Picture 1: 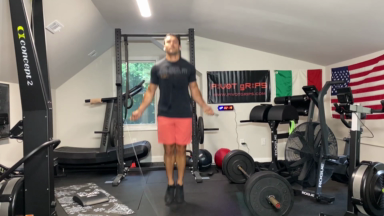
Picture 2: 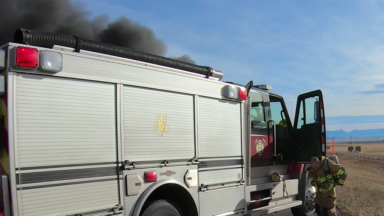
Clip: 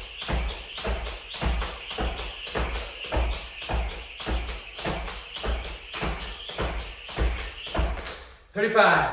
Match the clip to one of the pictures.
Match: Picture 1